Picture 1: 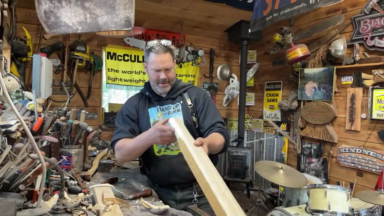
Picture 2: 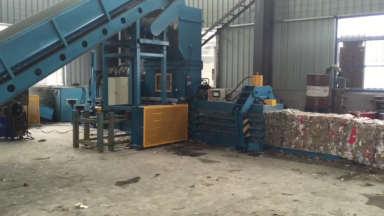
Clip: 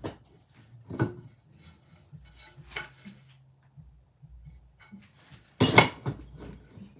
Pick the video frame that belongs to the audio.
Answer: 1